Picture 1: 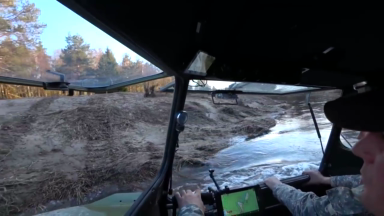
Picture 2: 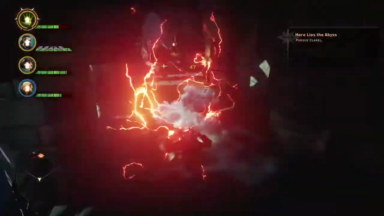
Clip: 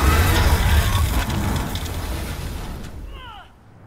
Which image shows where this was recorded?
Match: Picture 2